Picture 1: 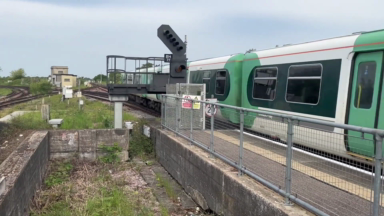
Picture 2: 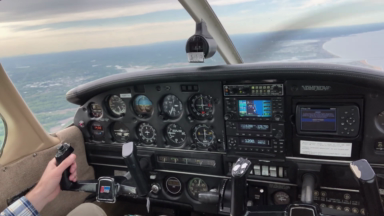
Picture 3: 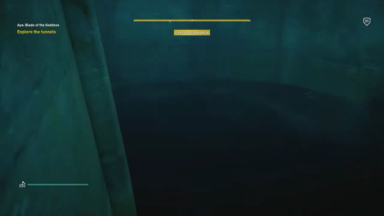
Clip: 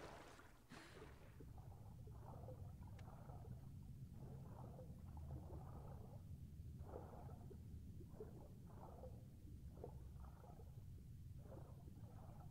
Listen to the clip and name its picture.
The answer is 3